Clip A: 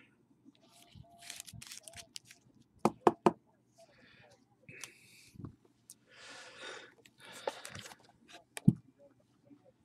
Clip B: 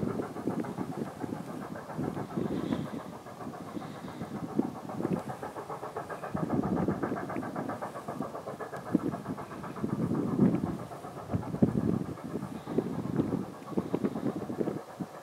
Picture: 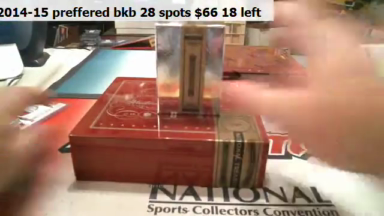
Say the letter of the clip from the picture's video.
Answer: A